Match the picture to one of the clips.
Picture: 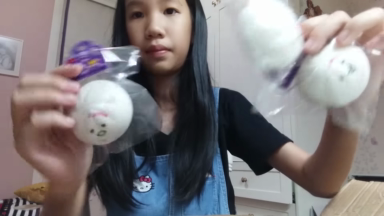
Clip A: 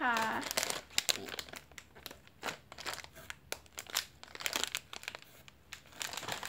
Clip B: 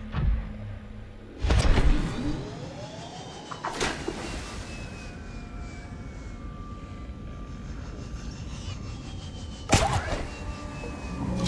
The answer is A